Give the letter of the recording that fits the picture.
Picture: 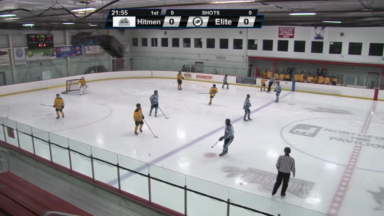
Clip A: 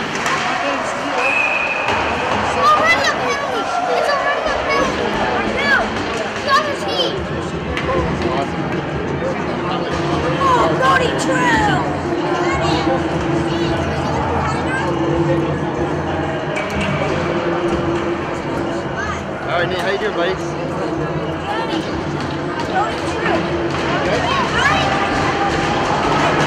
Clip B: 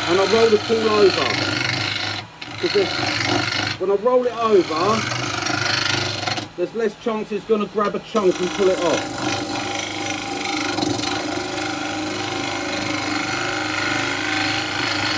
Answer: A